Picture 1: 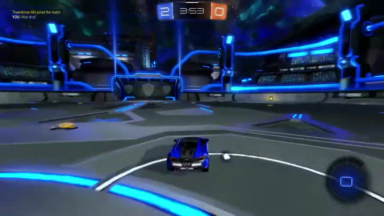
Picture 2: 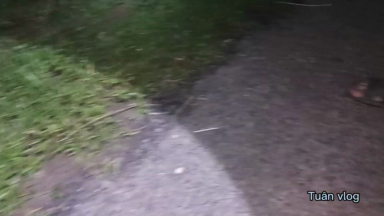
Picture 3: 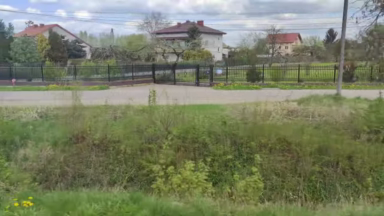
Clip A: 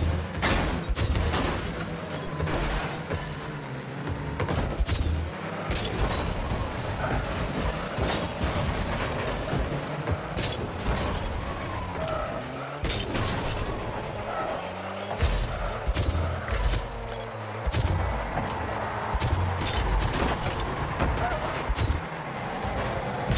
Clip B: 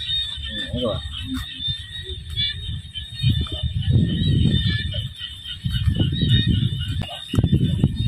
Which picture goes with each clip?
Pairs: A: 1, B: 2